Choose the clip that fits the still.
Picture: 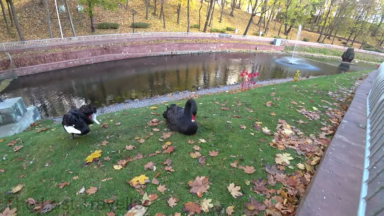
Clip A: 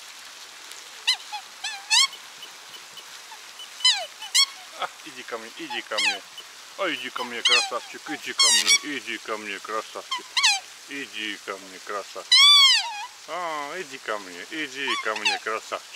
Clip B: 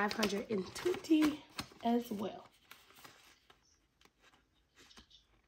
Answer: A